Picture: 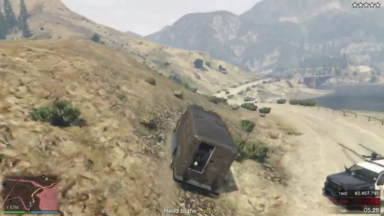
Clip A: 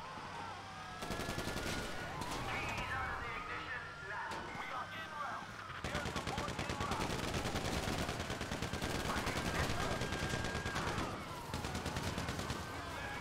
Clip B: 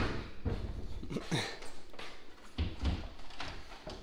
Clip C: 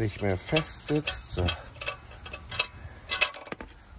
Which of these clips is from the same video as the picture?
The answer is A